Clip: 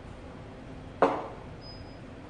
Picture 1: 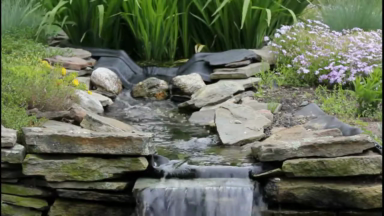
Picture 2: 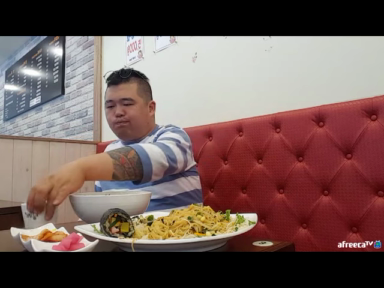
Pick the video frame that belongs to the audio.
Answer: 2